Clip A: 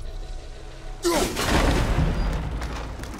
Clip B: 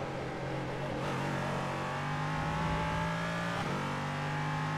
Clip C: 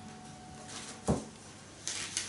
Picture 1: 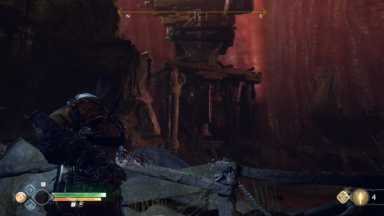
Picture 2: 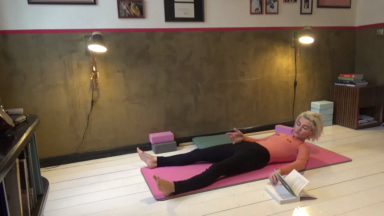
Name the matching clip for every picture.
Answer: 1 A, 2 C